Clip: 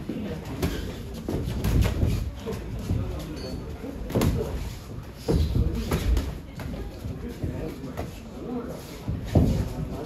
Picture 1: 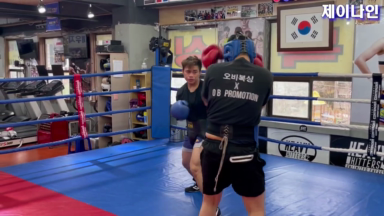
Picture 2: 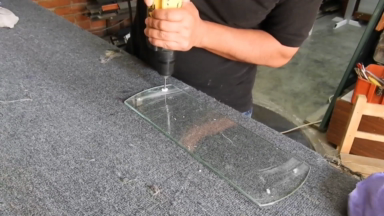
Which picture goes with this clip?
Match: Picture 1